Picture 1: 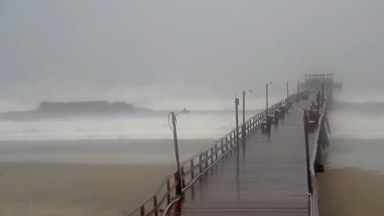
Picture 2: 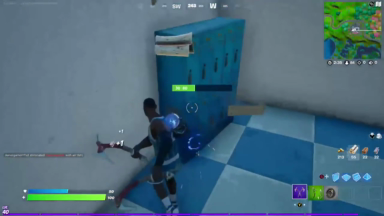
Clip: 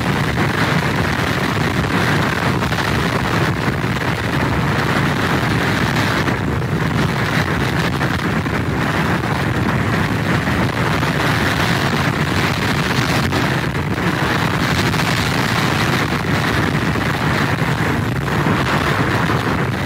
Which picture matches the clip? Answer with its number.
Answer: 1